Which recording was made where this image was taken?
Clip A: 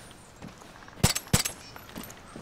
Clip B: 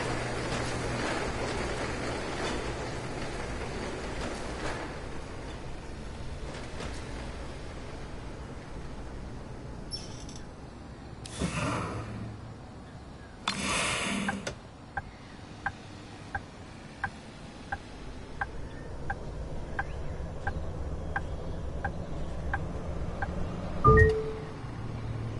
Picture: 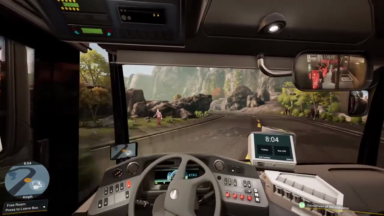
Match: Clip B